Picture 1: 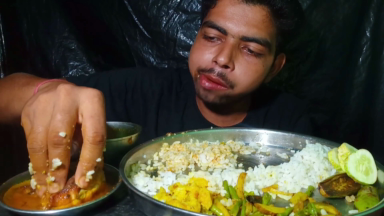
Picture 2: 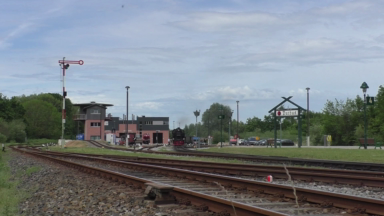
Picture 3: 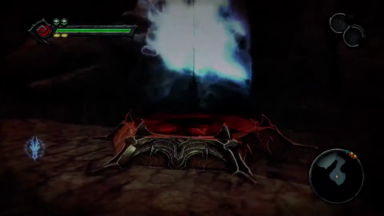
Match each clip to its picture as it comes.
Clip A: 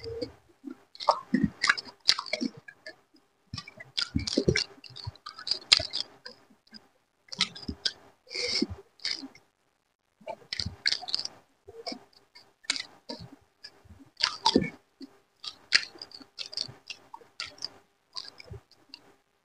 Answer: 1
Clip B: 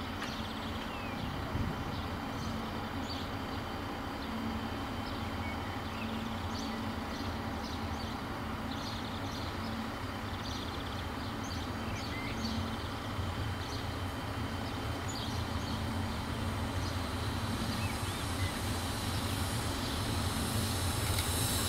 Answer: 2